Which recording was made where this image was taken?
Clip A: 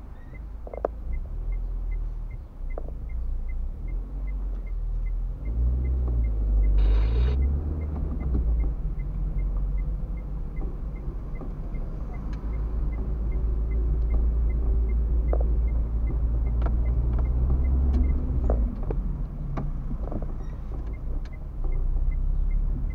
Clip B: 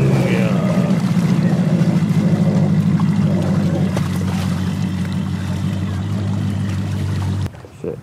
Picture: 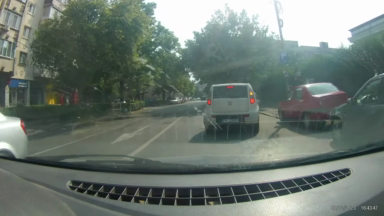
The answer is A